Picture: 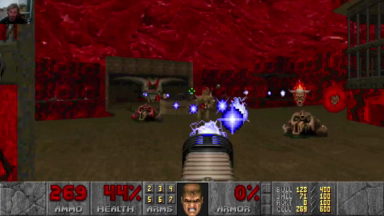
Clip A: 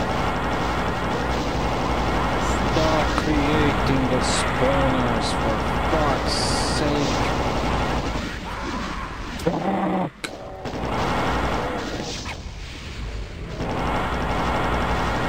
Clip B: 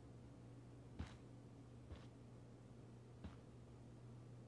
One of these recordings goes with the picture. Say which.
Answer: A